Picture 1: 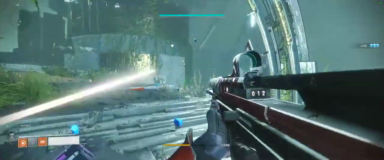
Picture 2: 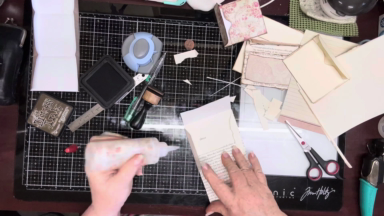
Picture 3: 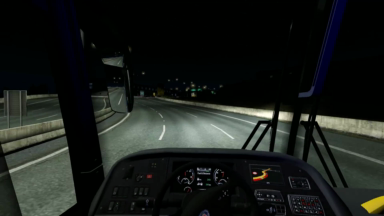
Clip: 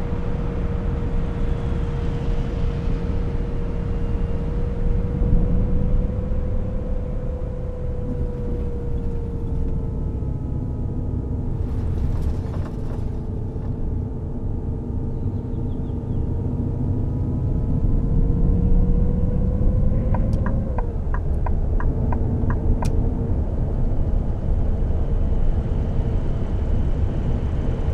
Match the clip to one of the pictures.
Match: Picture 3